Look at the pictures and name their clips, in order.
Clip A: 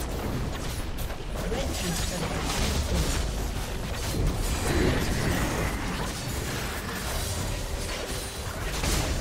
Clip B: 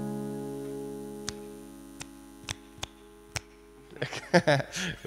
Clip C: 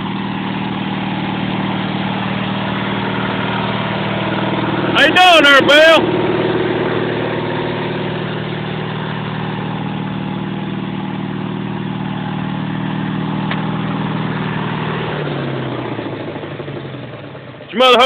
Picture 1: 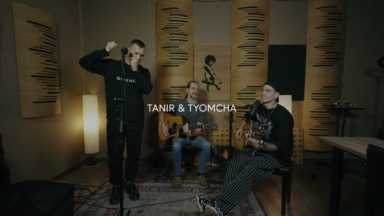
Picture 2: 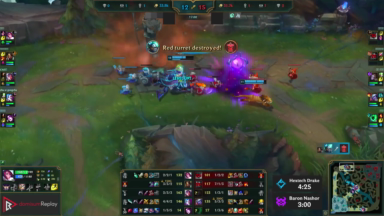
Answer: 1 B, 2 A